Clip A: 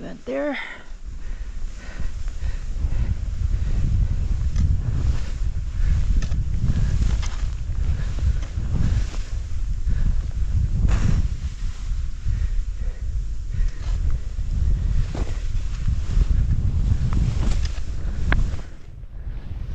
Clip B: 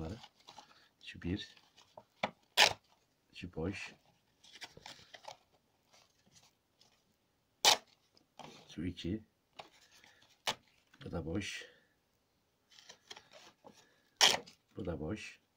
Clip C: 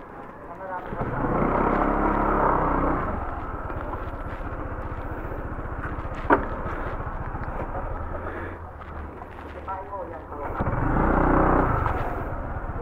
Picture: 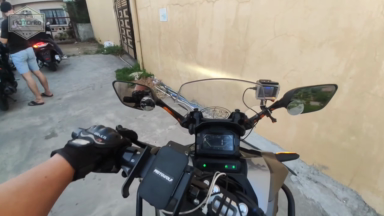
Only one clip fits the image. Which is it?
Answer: C